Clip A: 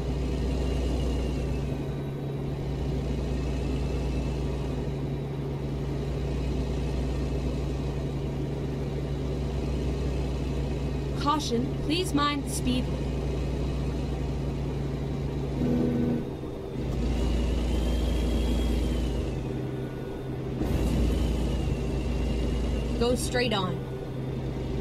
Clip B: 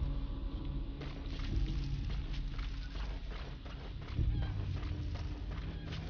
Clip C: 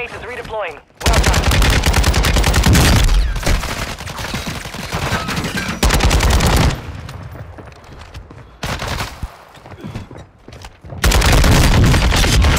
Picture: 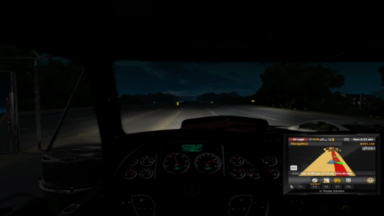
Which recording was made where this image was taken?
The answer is A